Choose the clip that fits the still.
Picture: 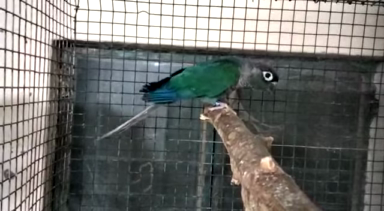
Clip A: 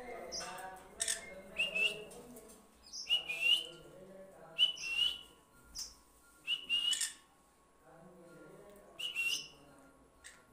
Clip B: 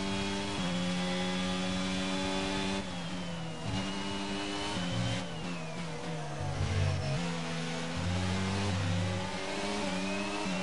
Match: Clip A